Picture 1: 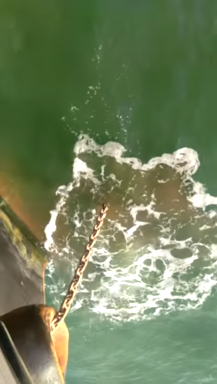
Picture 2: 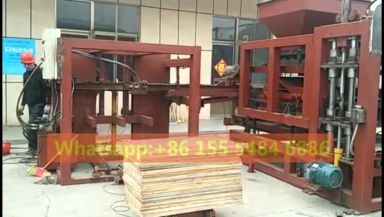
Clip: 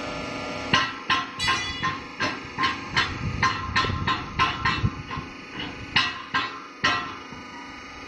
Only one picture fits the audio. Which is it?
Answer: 2